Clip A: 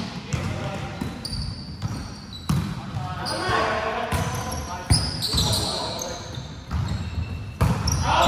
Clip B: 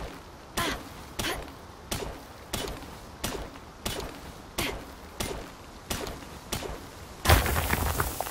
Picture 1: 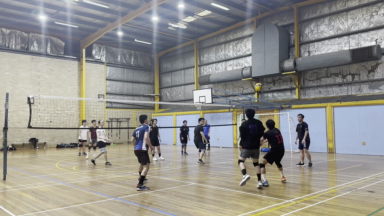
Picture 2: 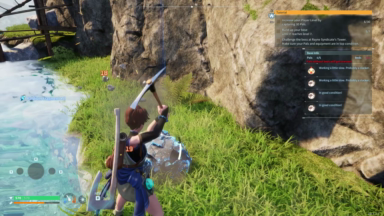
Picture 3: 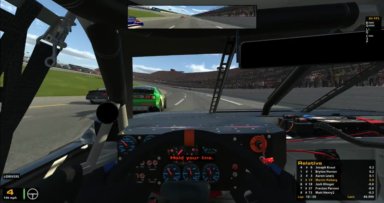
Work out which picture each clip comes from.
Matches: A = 1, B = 2